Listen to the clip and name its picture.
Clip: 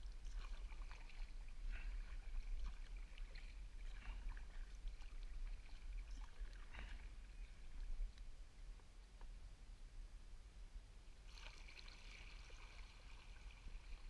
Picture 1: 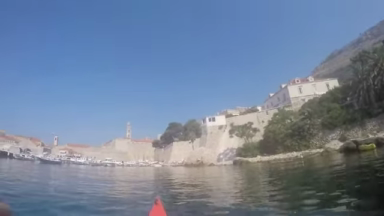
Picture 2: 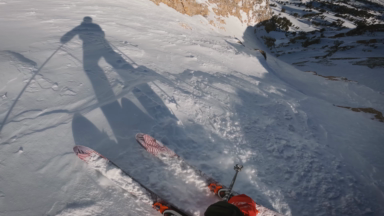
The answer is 1